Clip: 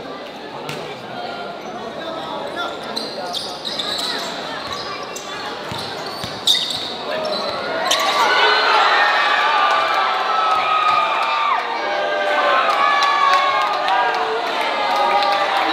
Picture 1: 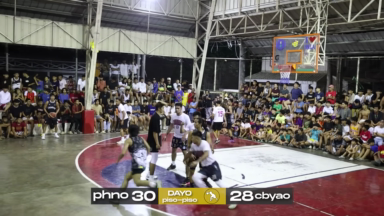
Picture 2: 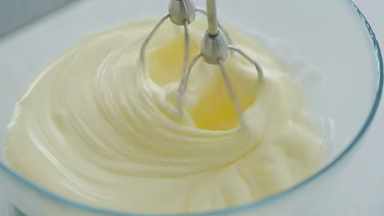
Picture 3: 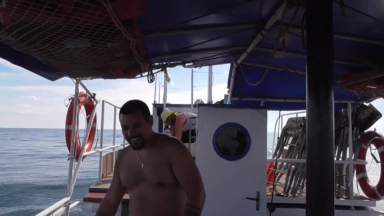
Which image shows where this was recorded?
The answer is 1